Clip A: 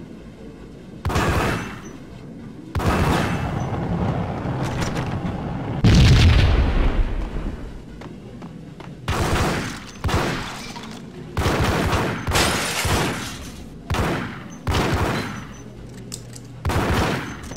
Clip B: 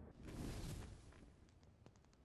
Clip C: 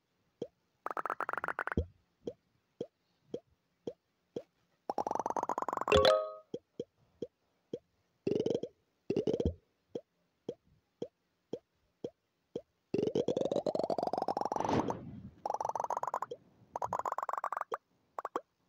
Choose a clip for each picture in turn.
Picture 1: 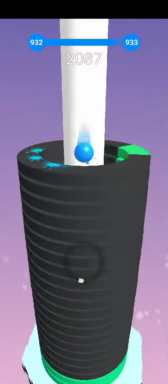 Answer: C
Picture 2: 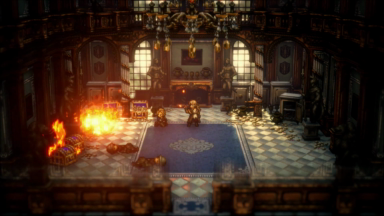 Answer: B